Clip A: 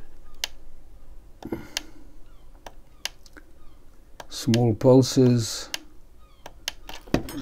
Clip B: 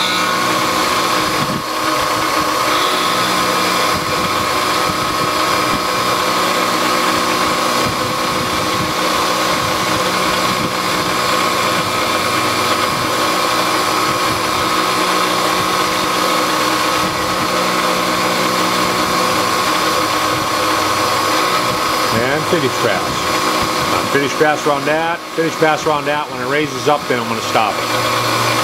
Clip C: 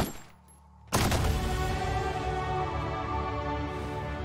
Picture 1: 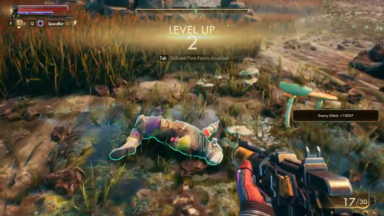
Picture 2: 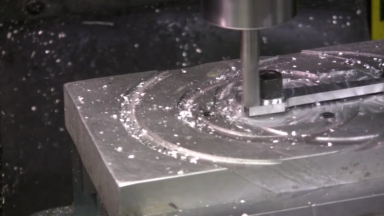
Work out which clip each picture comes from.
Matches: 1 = C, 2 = B